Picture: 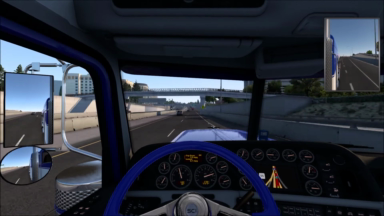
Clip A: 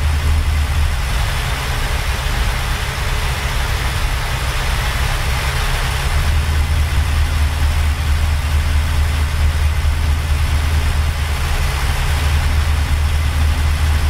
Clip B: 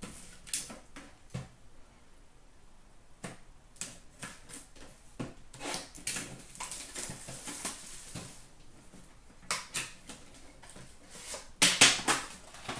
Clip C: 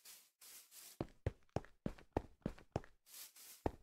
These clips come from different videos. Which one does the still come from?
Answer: A